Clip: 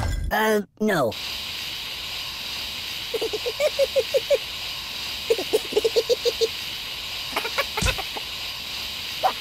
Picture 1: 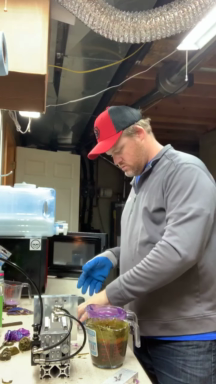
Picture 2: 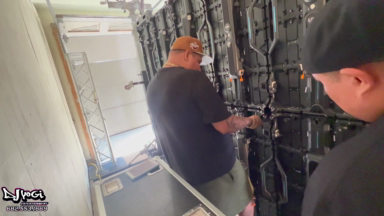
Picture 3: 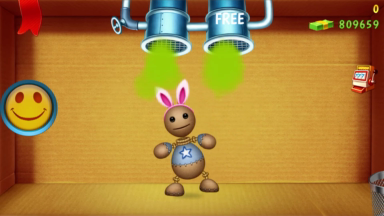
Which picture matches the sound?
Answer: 3